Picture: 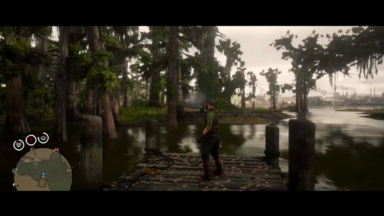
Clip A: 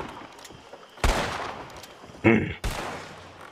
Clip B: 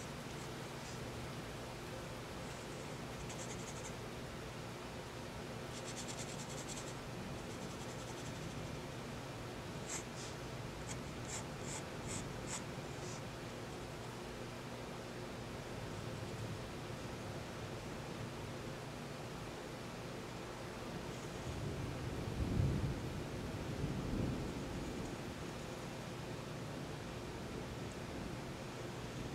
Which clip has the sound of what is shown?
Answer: A